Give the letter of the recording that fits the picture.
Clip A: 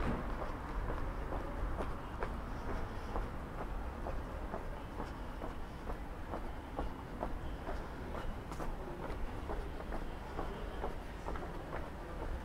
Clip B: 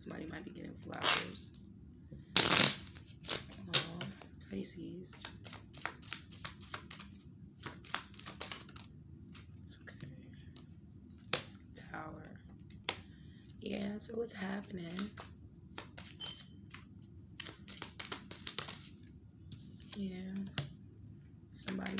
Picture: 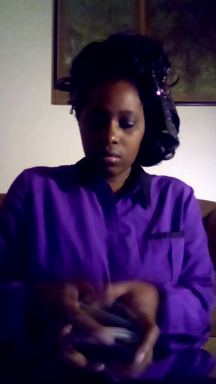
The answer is B